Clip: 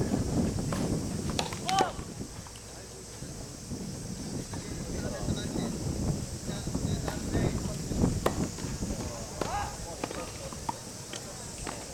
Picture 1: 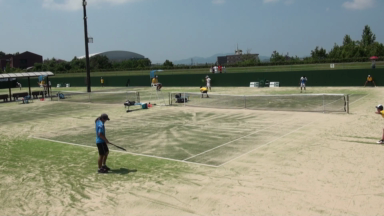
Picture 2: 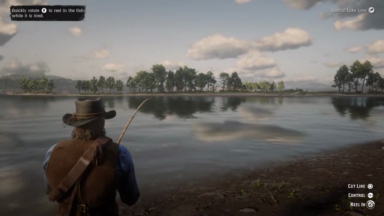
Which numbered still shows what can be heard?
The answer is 1